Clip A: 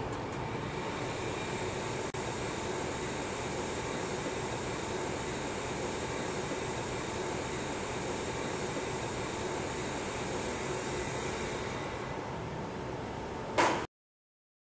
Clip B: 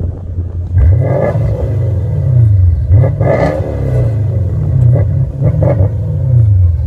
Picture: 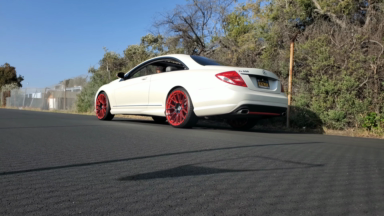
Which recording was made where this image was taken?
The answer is B